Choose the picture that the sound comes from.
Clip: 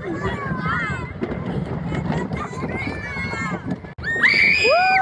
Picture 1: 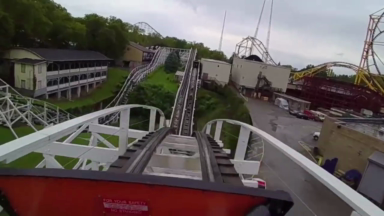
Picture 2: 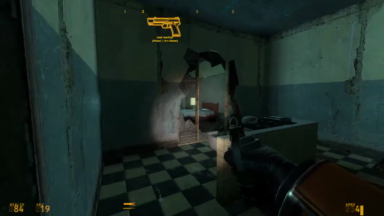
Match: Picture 1